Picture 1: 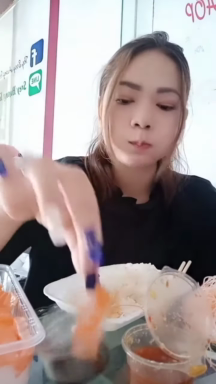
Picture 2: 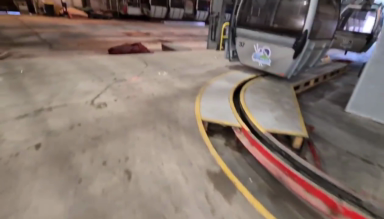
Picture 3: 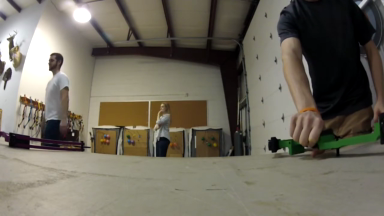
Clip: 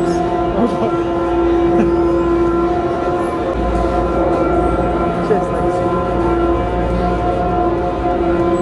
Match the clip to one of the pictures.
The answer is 2